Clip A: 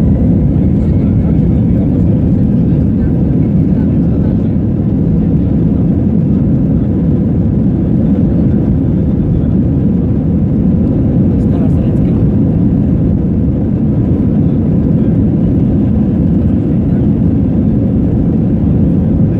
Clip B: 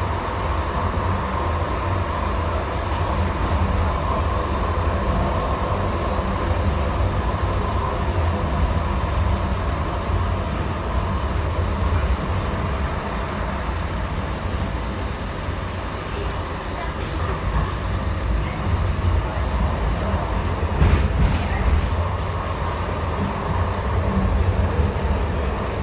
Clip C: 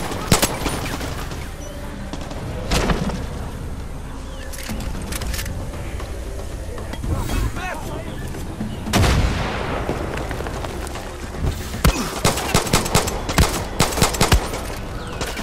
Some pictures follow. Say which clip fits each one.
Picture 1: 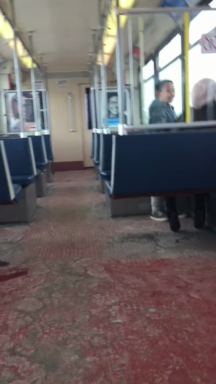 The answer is B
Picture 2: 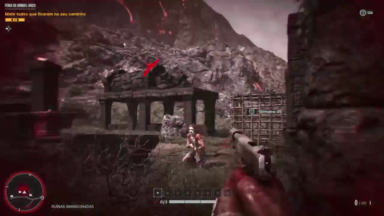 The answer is C